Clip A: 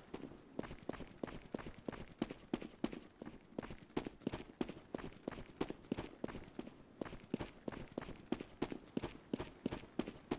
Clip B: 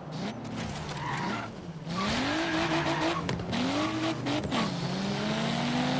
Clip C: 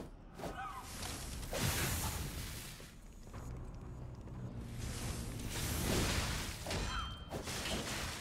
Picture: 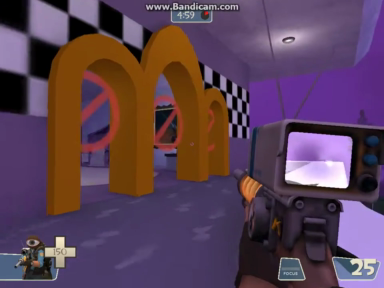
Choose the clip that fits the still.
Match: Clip A